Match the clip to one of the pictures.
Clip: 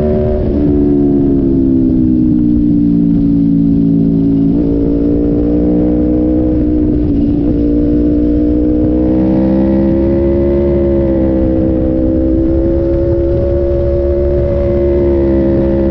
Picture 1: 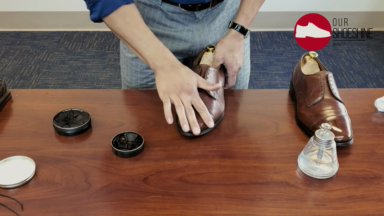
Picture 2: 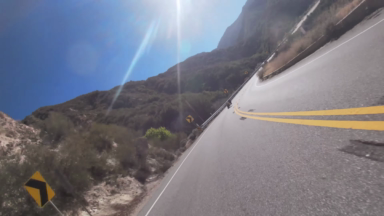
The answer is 2